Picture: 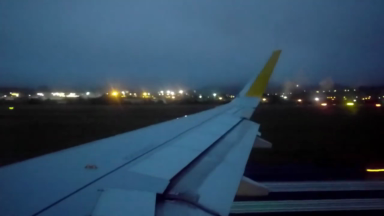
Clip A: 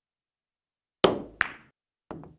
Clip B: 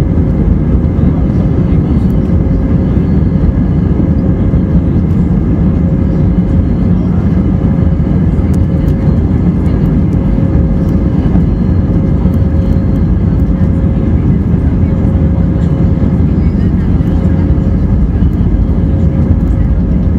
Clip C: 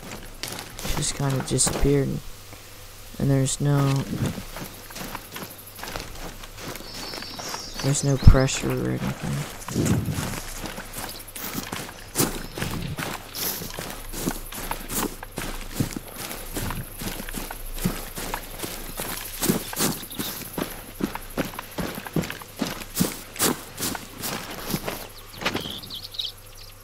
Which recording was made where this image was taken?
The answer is B